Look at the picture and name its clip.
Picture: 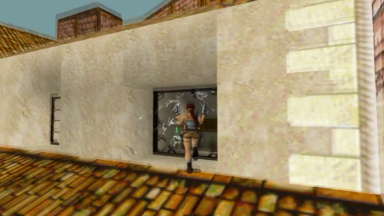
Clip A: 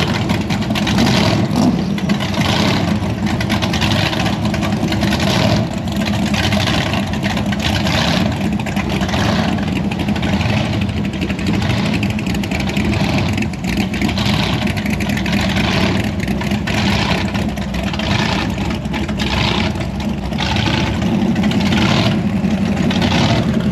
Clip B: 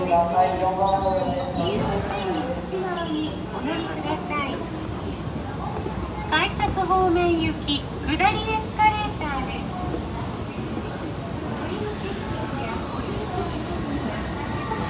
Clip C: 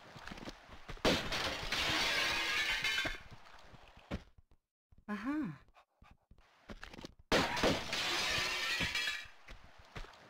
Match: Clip C